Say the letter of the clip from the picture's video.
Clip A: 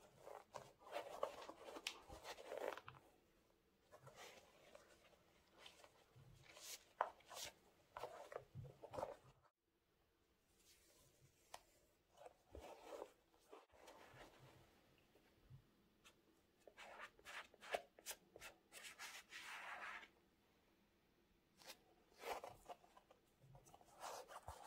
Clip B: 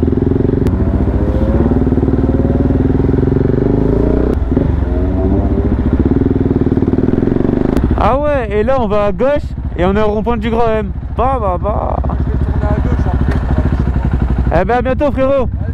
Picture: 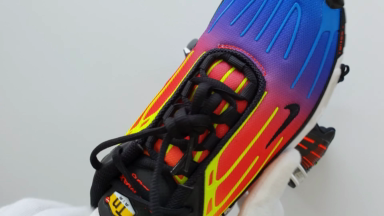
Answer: A